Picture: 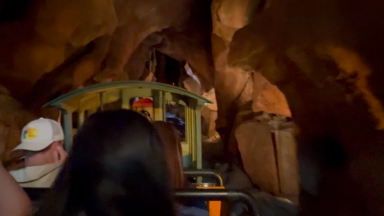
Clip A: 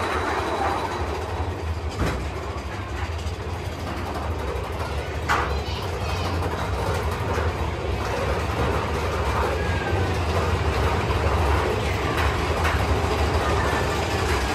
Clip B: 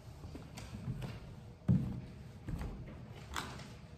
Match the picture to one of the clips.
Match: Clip A